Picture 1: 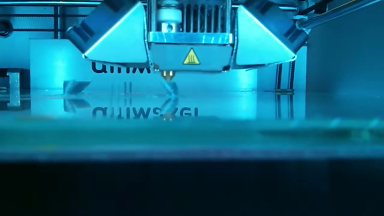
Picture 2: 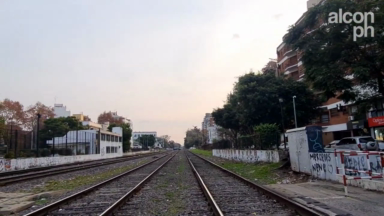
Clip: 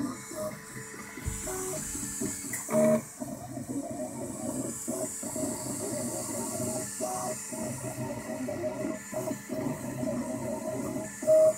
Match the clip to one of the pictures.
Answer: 1